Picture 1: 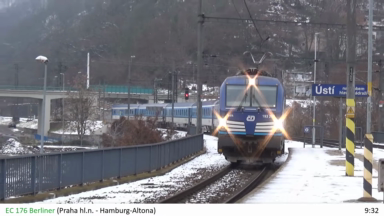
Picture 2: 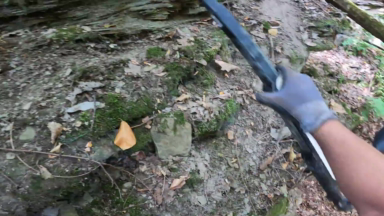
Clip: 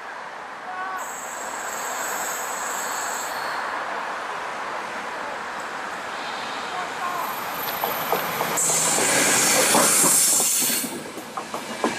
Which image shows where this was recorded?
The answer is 1